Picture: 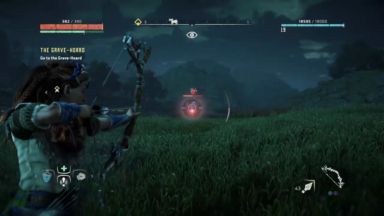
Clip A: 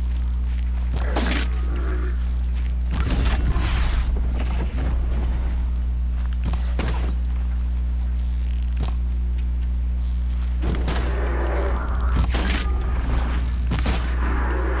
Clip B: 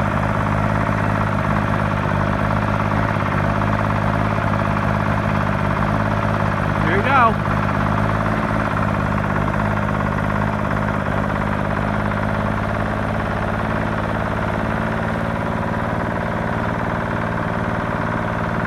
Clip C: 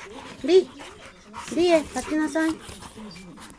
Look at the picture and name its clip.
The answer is A